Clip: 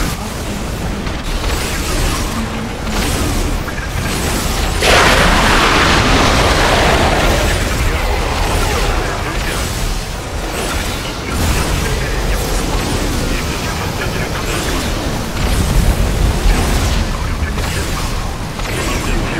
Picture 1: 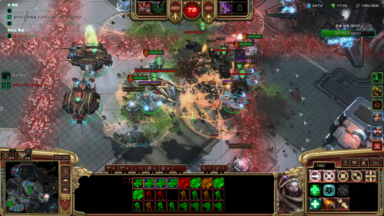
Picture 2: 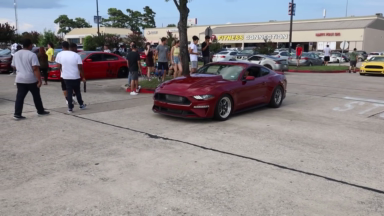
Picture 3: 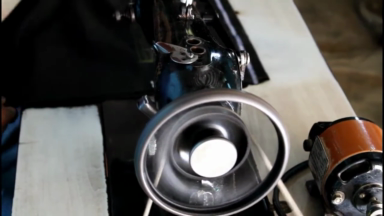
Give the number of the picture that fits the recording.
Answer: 1